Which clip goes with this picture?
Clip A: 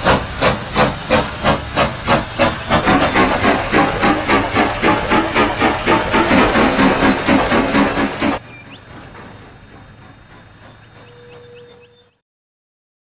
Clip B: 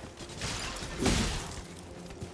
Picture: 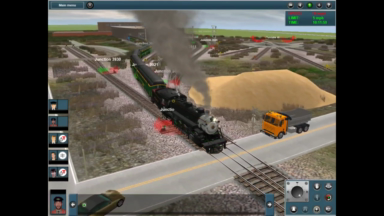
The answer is A